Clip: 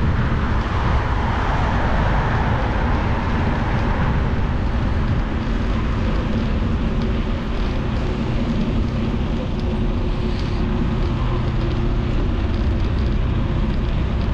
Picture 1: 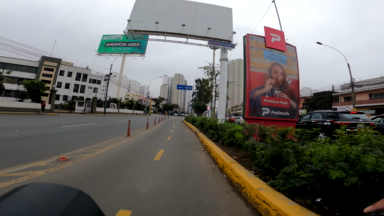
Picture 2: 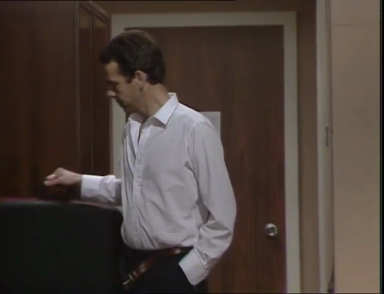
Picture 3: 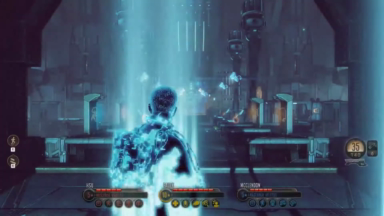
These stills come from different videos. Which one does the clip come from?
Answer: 1